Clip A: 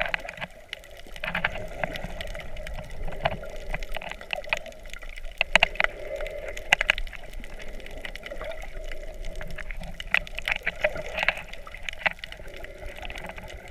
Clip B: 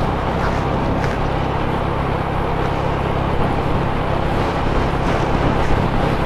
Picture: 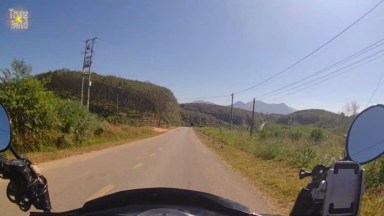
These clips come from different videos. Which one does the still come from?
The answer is B